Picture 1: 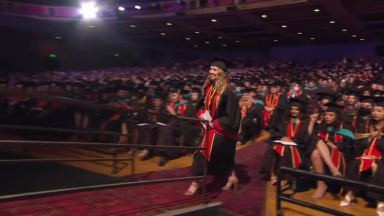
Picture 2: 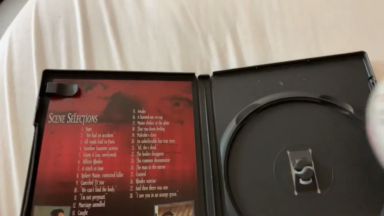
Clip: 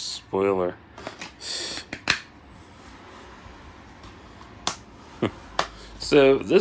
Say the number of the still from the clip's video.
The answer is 2